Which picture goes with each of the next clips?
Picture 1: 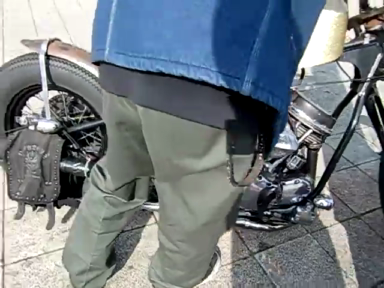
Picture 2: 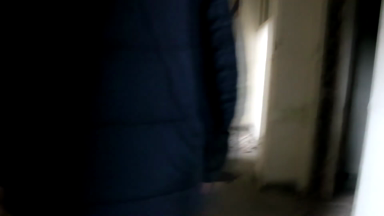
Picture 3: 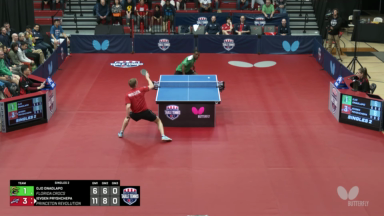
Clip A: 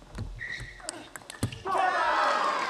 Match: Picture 3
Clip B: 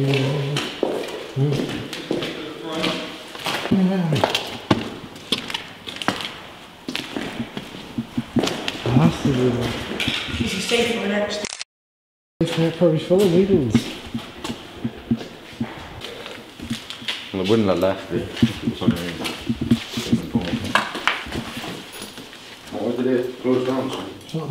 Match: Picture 2